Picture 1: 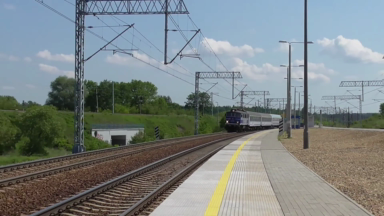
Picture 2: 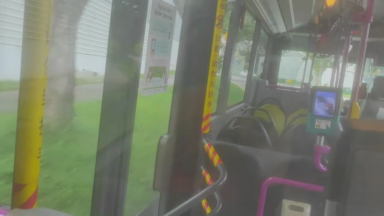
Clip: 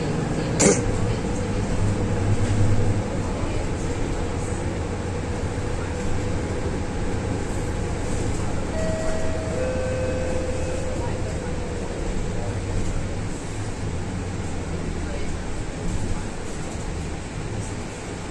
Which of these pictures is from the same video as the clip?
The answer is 2